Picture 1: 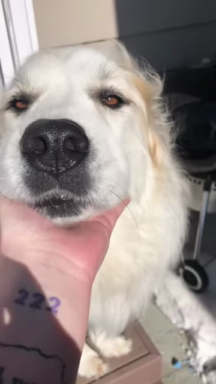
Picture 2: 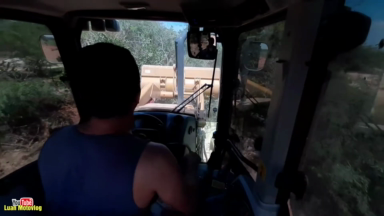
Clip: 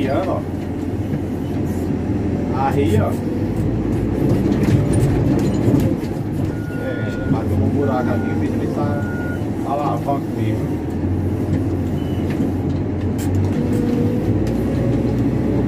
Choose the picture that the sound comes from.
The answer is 2